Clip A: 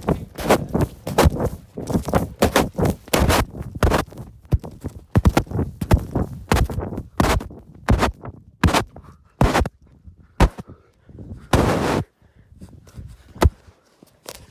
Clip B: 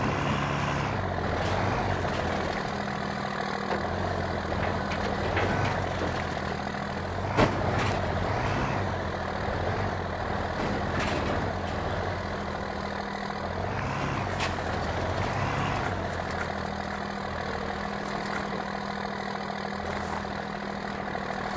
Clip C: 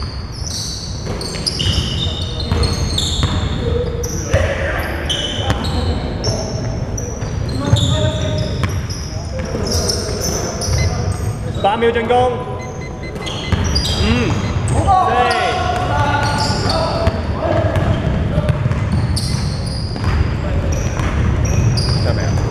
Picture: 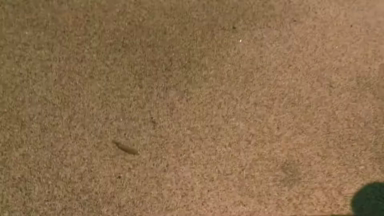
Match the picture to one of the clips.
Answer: A